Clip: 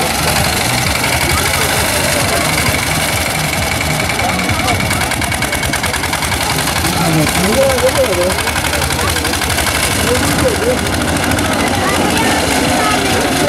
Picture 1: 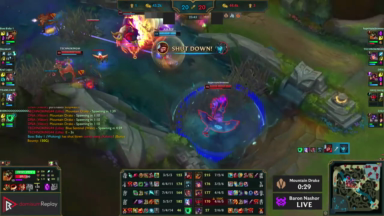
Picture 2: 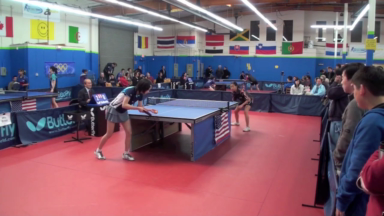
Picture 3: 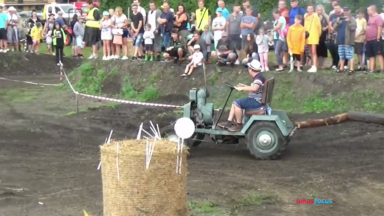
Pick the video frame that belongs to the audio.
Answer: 3